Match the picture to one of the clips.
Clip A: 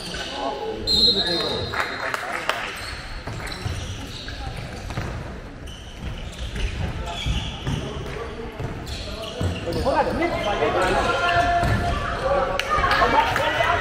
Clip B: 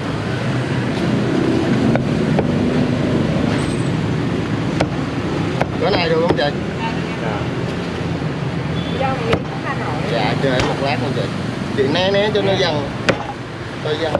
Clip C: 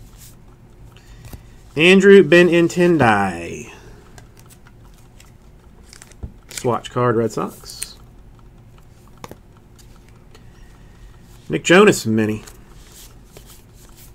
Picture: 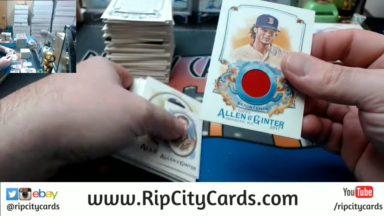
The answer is C